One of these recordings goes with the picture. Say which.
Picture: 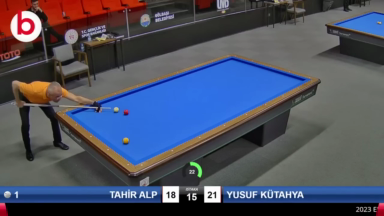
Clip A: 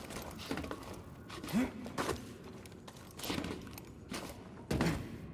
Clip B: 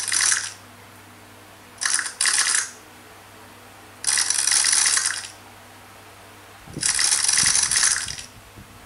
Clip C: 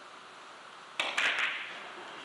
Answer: C